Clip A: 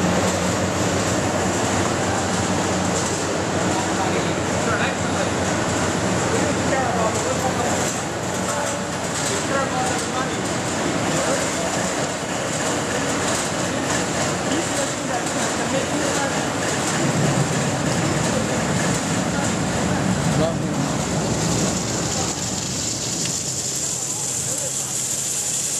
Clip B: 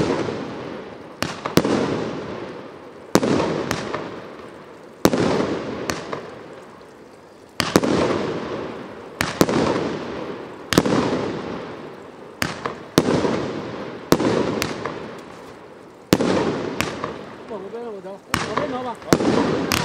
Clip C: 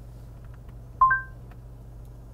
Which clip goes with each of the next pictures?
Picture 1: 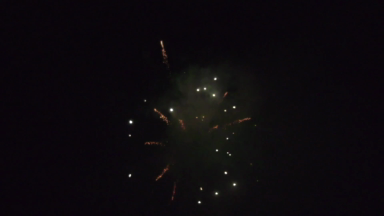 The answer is B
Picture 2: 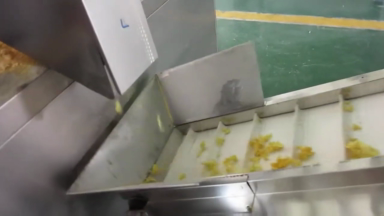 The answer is A